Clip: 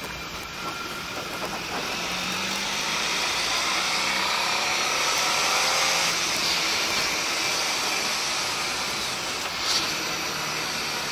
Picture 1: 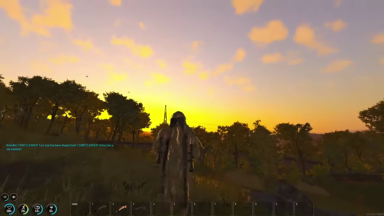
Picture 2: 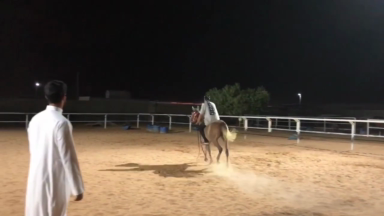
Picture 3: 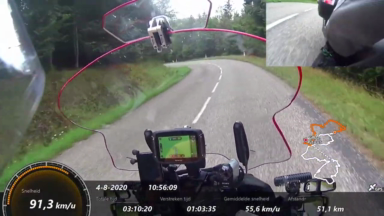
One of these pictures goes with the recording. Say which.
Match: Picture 3